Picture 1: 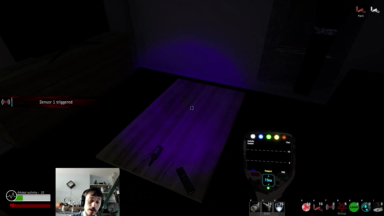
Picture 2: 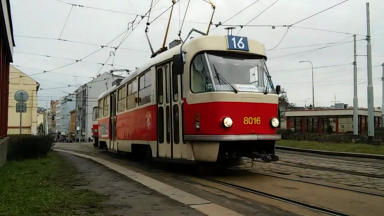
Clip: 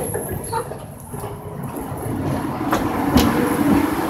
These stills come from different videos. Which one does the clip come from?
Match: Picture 2